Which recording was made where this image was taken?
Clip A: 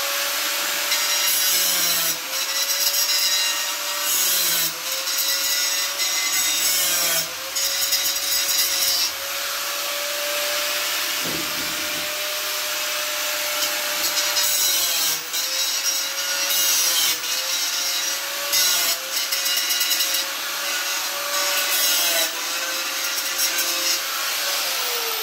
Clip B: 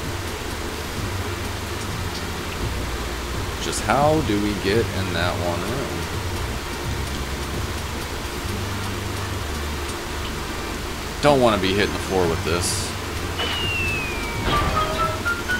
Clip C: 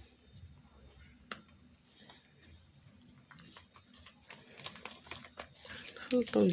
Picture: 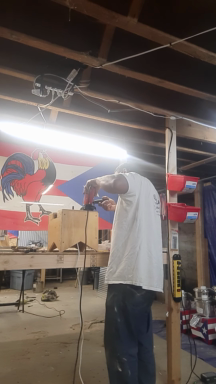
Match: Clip A